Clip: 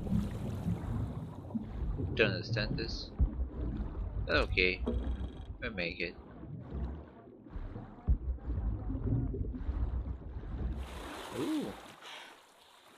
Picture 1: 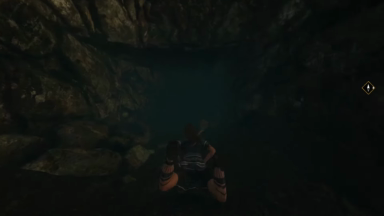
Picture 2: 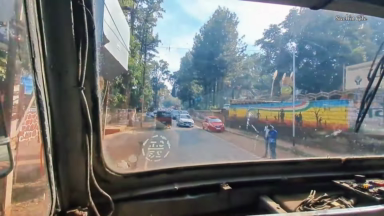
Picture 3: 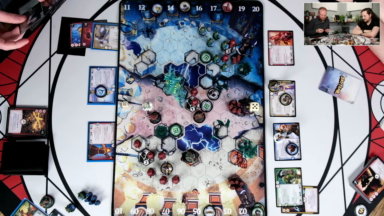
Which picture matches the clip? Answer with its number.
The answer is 1